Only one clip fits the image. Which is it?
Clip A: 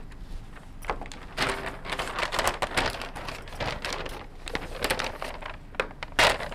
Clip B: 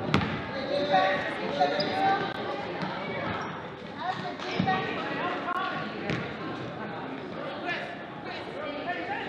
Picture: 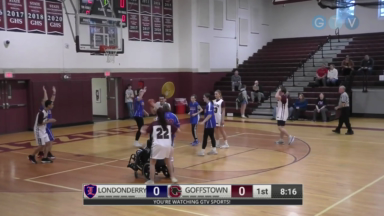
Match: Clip B